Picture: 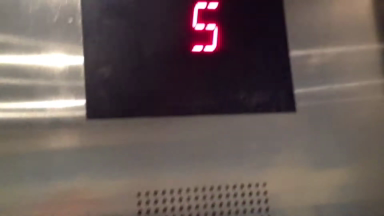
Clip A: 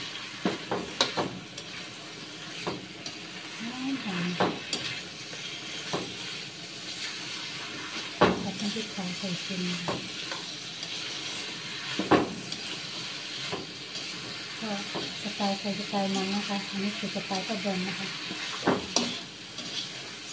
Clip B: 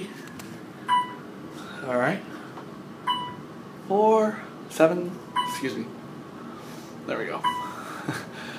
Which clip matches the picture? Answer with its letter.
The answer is B